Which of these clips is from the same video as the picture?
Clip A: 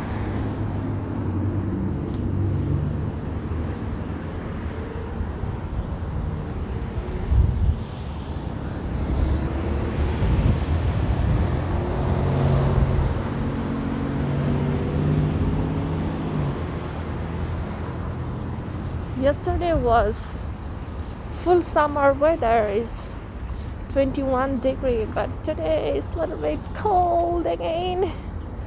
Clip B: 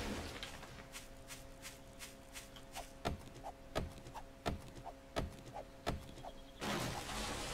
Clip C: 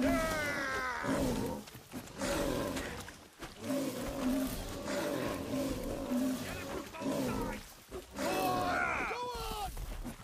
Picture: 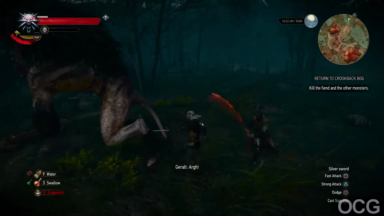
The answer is C